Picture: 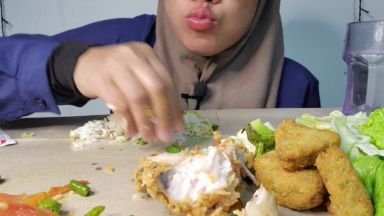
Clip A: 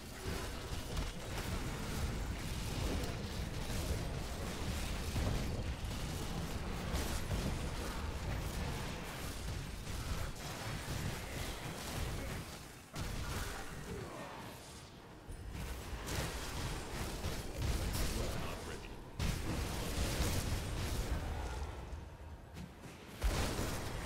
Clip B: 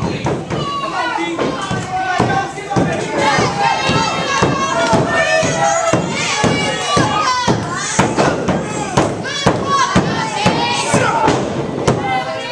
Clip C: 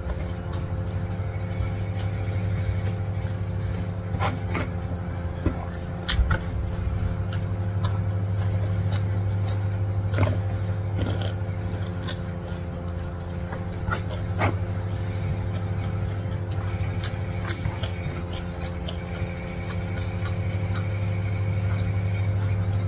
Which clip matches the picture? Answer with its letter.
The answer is C